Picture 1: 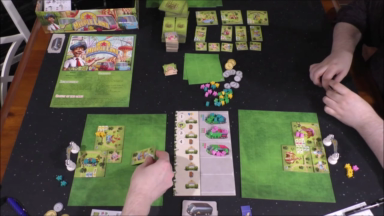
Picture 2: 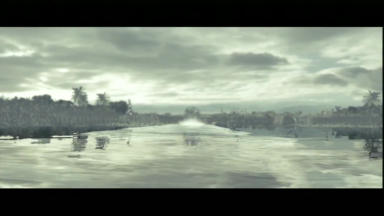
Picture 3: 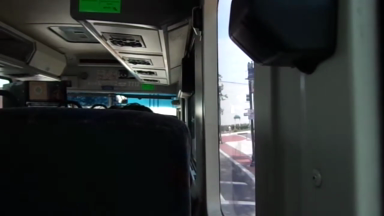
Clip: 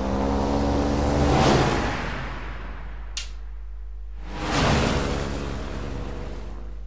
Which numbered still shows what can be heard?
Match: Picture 2